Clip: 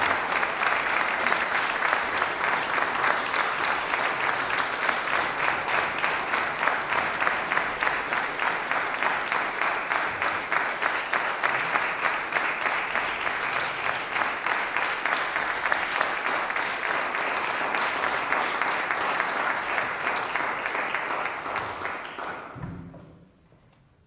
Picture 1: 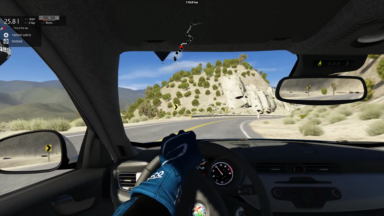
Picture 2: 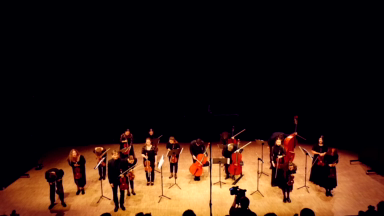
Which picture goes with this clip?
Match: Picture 2